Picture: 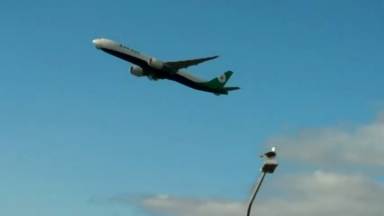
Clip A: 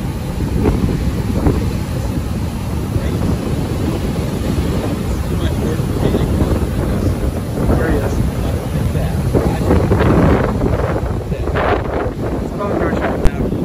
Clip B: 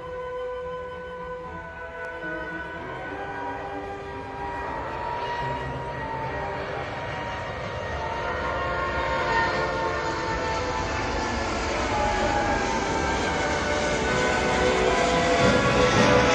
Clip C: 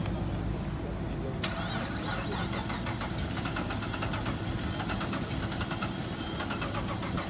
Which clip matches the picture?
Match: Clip B